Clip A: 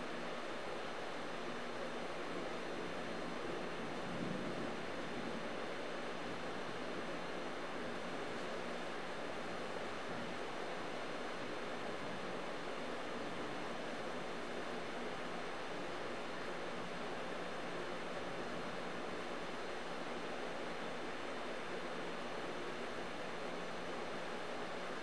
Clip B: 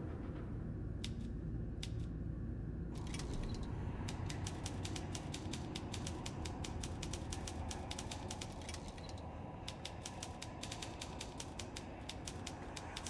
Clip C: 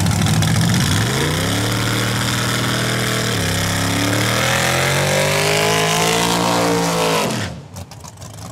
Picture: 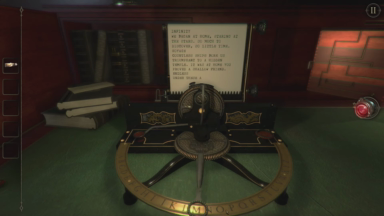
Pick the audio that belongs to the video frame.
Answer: B